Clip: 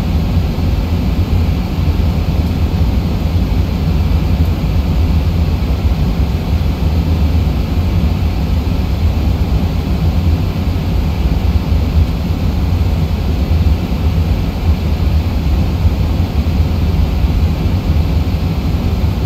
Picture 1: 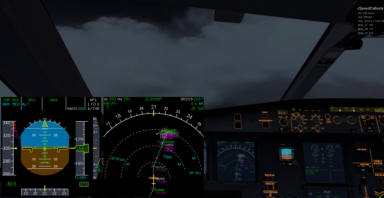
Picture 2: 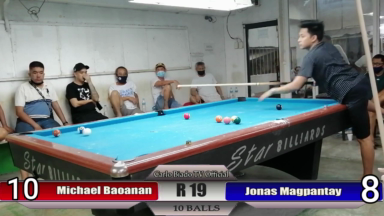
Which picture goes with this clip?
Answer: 1